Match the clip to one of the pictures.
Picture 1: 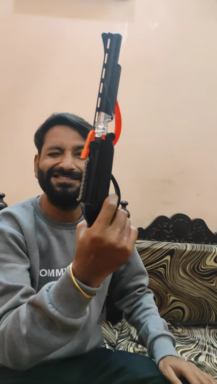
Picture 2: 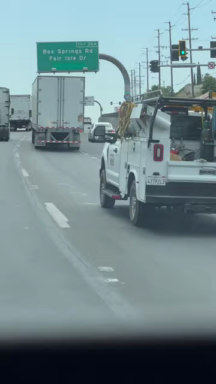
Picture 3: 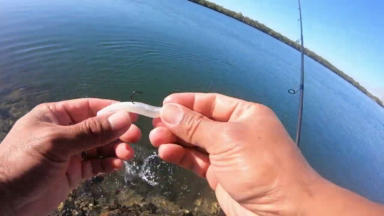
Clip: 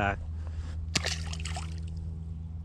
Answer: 3